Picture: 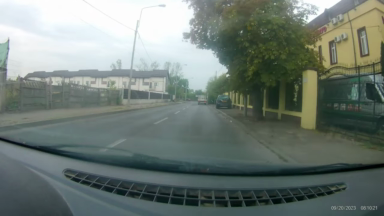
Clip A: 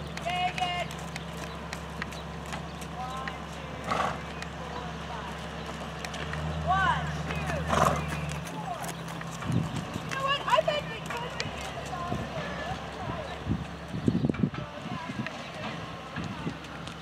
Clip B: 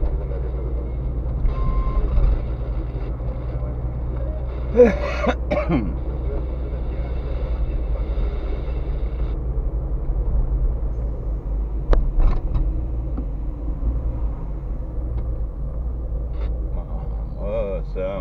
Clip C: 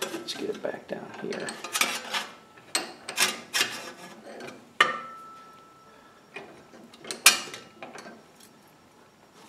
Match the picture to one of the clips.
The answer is B